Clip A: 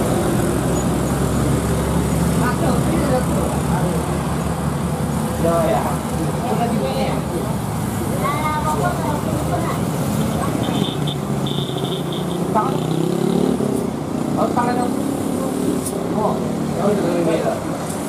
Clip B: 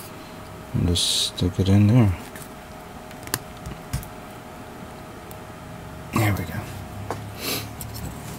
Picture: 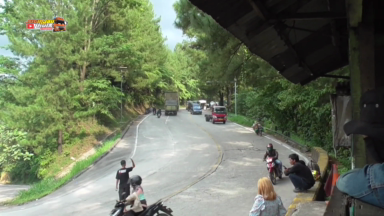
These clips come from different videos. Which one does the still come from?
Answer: A